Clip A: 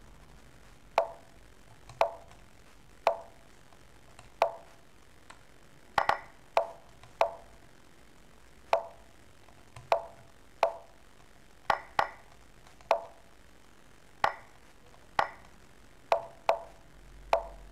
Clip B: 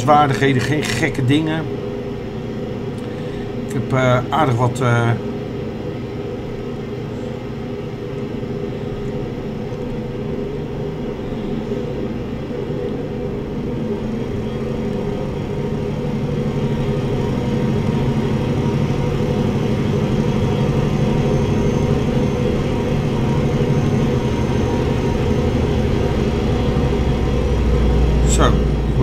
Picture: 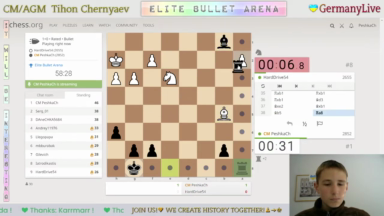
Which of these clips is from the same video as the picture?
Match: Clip A